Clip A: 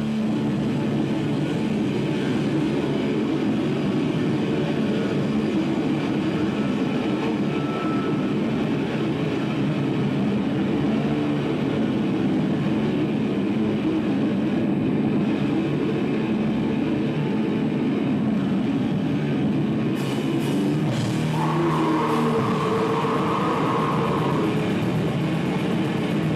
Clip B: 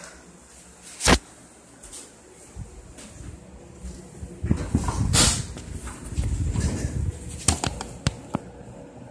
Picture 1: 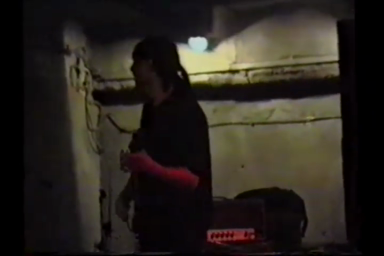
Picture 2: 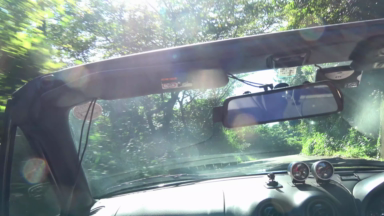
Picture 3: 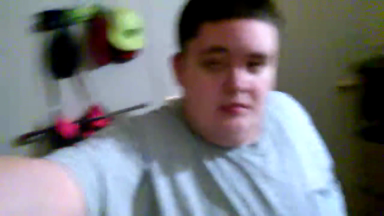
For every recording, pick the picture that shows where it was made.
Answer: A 1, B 3